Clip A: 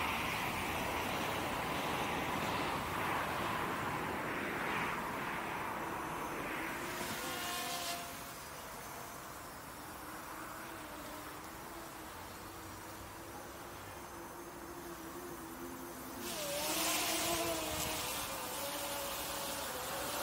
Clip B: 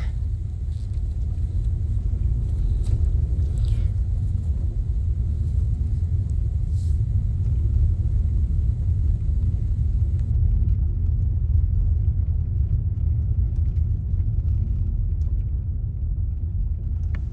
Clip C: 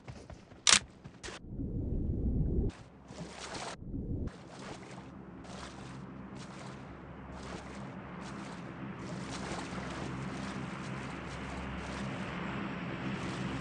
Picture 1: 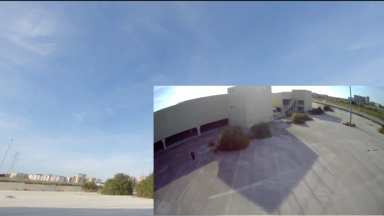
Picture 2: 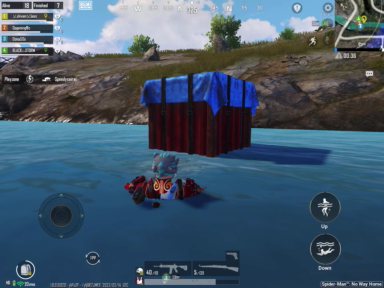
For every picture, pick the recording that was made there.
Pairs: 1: A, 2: C